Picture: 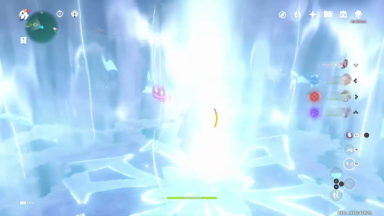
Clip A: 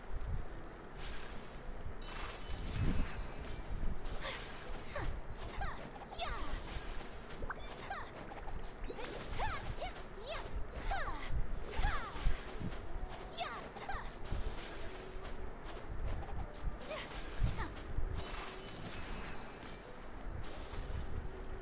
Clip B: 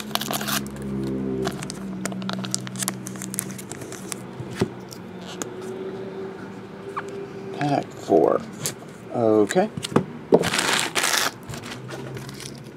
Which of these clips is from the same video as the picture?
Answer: A